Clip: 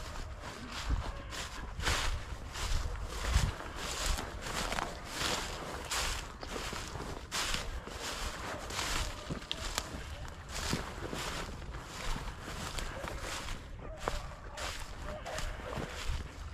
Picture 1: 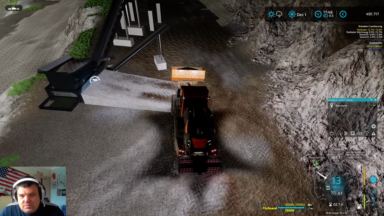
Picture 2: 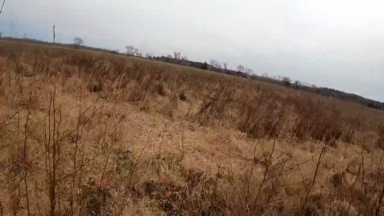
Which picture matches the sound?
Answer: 2